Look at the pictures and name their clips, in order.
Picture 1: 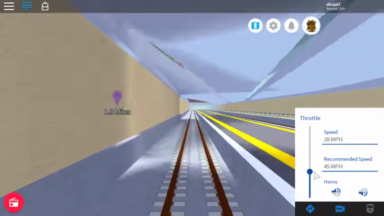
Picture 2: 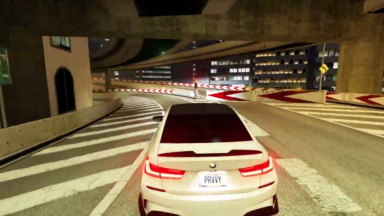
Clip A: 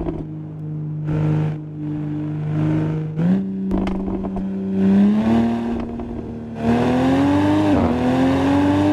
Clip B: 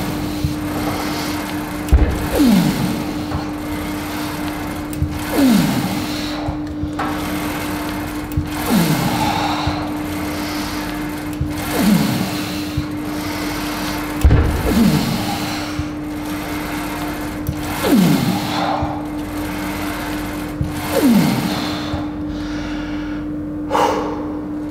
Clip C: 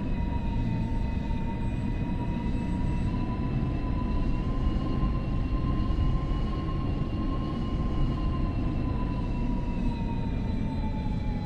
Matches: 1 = C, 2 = A